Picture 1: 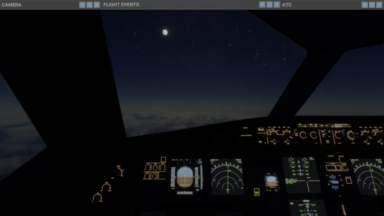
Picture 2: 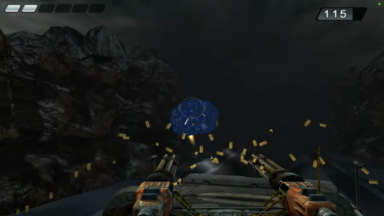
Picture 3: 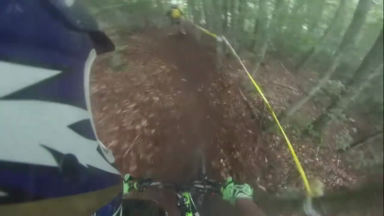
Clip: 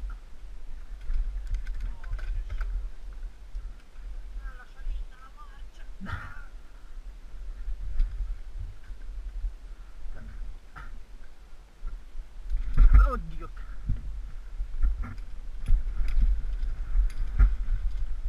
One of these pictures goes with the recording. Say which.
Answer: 3